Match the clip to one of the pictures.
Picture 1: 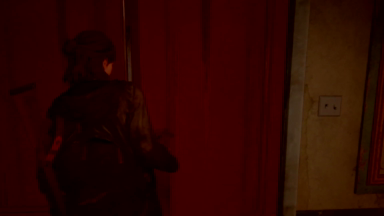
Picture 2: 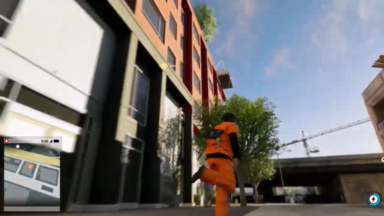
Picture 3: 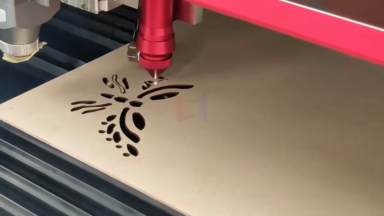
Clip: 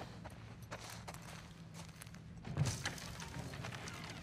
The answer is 1